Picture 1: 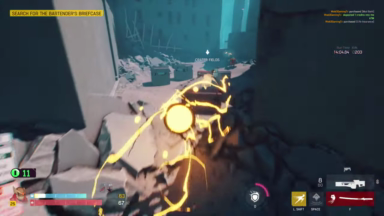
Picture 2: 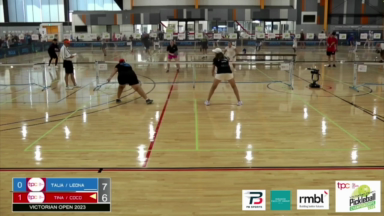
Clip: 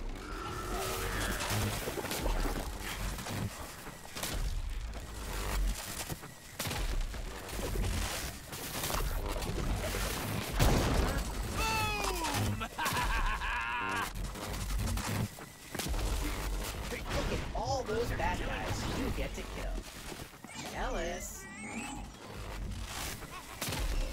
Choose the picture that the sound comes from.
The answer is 1